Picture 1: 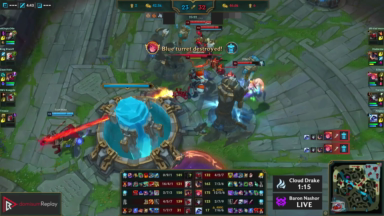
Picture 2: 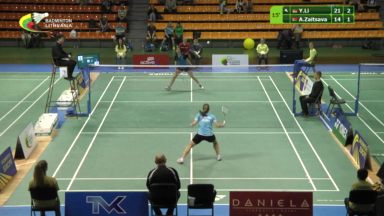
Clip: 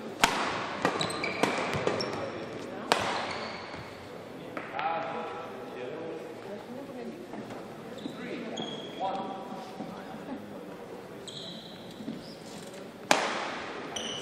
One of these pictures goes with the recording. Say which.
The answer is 2